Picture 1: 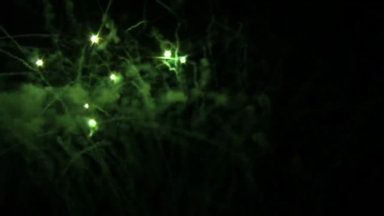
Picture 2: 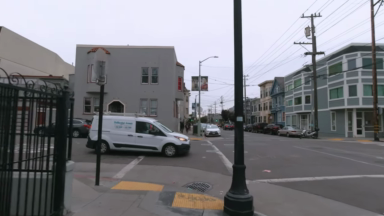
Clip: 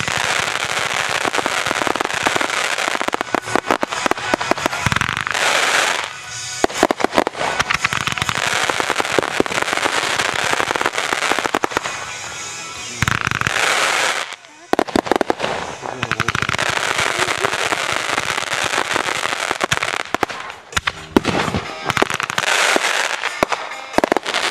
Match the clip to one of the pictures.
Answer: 1